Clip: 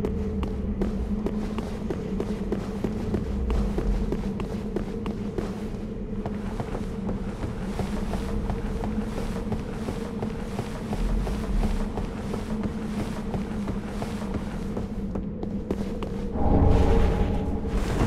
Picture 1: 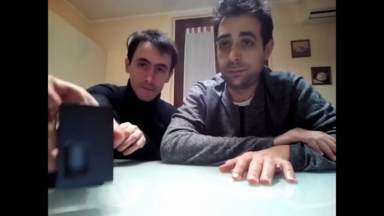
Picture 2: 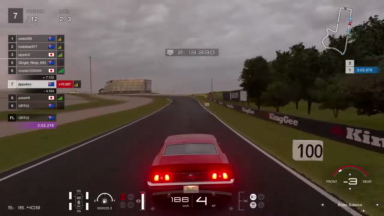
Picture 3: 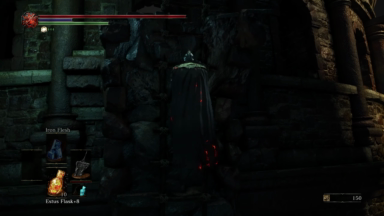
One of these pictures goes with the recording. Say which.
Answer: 3